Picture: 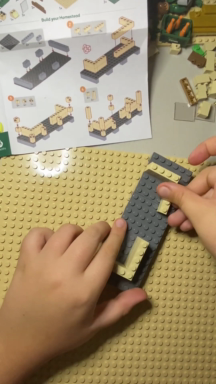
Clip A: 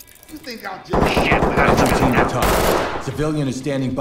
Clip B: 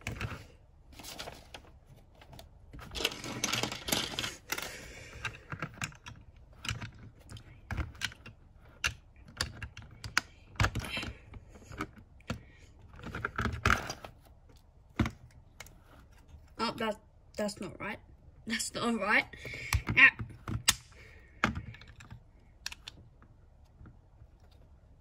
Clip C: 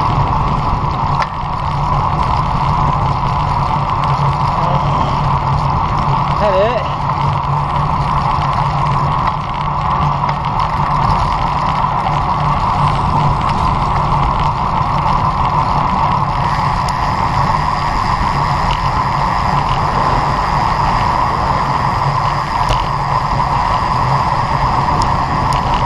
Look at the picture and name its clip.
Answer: B